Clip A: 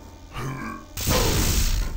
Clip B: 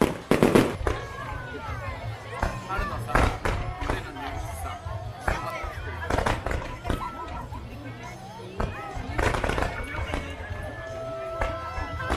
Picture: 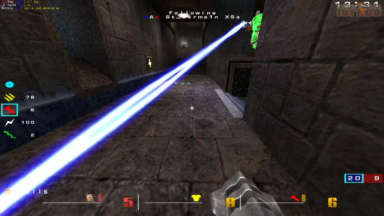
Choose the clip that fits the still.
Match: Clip A